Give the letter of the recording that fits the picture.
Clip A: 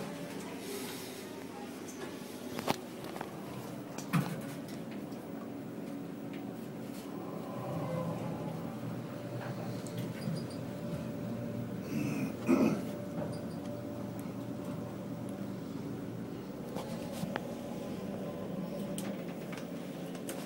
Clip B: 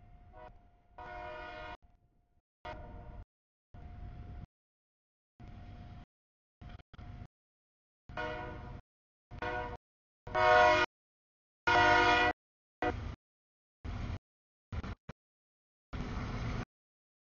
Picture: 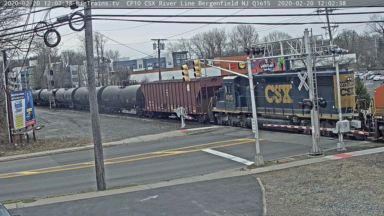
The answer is B